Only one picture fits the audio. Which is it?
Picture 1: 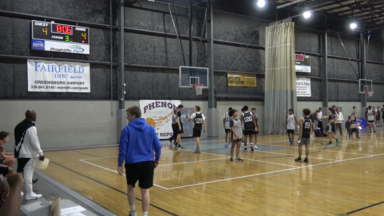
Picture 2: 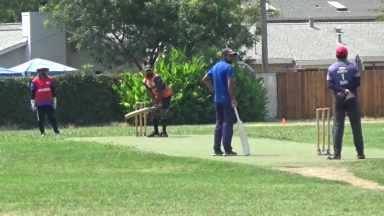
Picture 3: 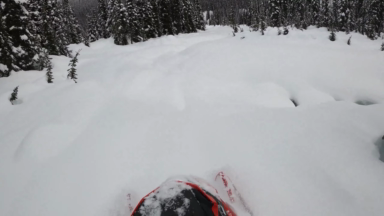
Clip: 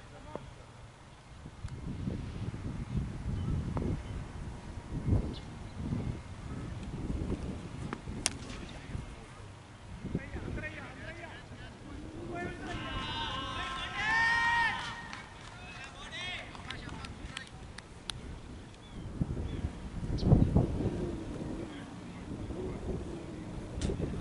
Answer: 2